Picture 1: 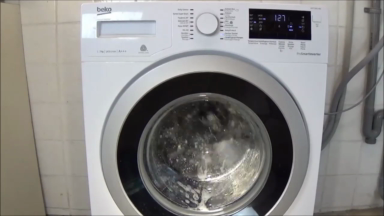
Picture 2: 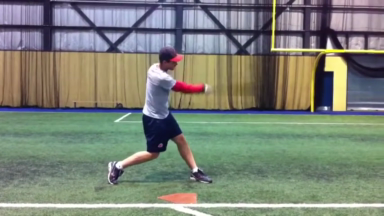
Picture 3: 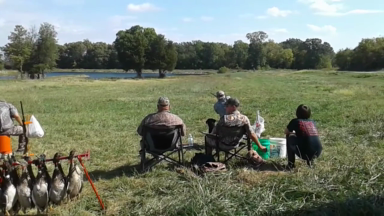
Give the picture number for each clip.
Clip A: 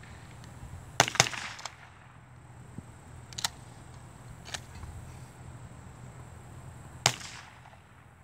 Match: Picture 3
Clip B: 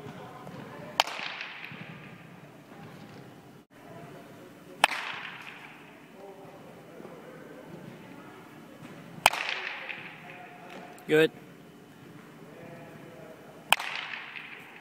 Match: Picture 2